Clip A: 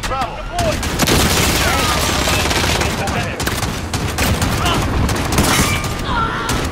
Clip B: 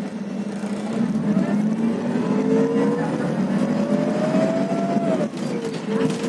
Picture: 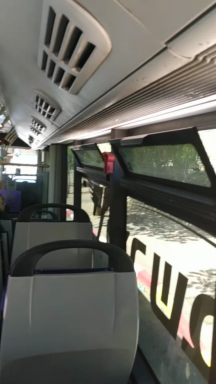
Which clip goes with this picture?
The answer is B